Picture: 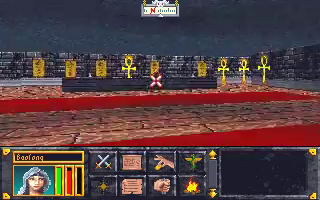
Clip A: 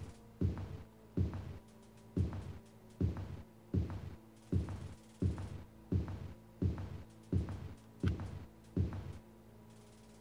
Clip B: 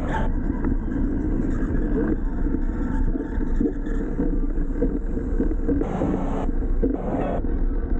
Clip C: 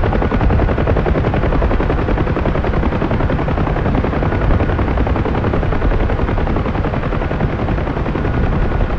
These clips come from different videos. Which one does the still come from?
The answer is A